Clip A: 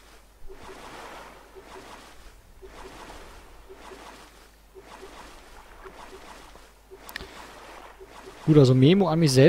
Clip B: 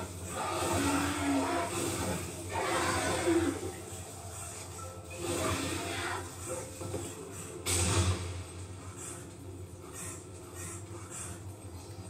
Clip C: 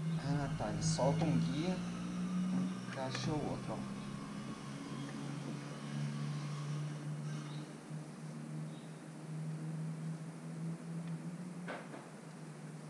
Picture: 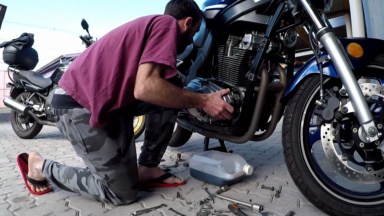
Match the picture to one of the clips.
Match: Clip C